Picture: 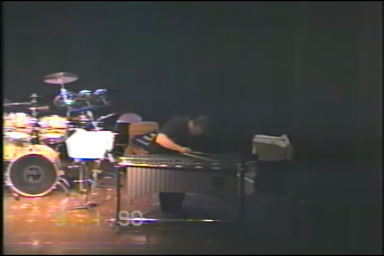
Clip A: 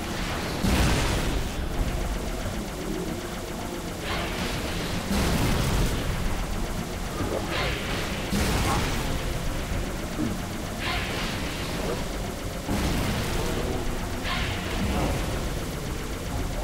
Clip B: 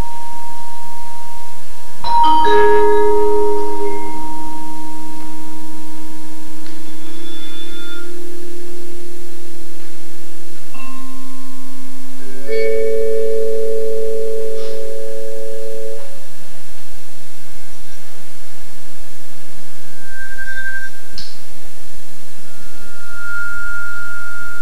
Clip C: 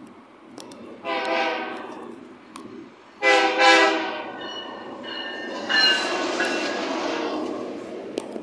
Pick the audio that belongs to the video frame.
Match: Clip B